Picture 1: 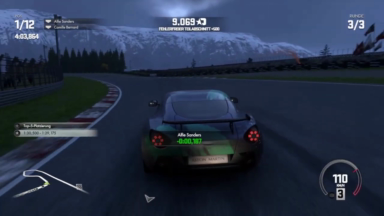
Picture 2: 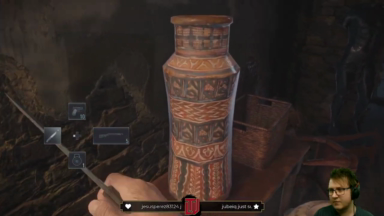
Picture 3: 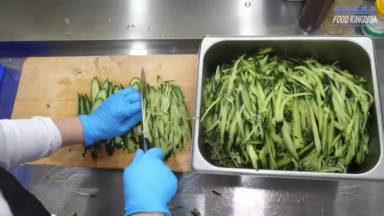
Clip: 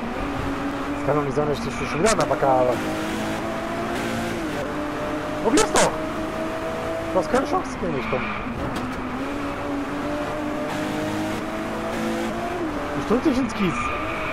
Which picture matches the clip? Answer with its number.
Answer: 1